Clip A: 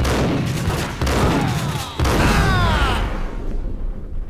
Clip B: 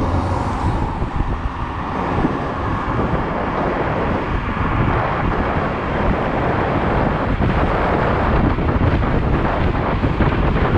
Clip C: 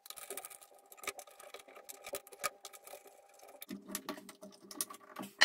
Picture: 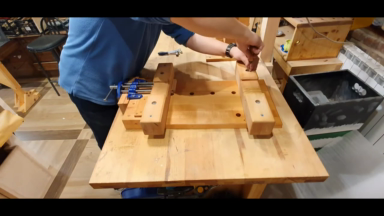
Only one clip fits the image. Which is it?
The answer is C